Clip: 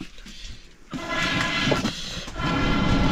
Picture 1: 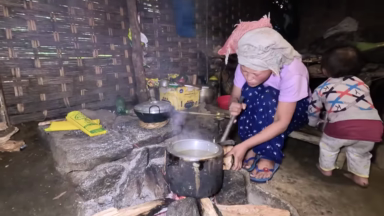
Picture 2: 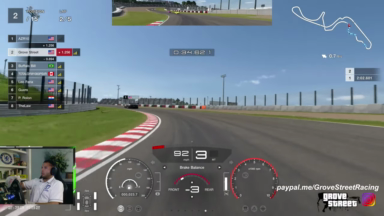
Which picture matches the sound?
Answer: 1